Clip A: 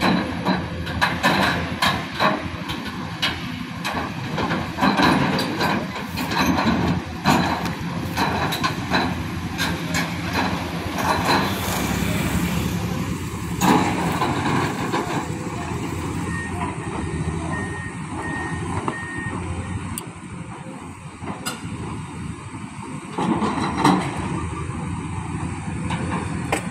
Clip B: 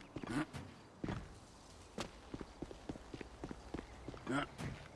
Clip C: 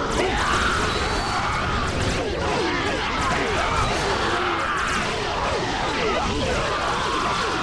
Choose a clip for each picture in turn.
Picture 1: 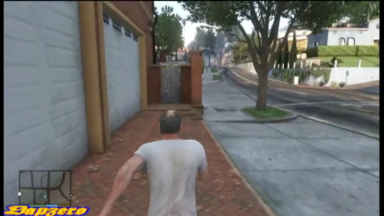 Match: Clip B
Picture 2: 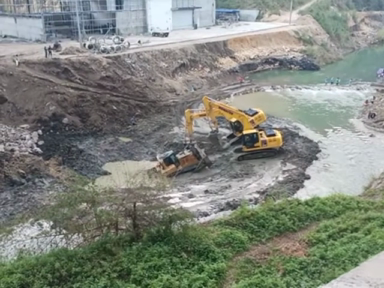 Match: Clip A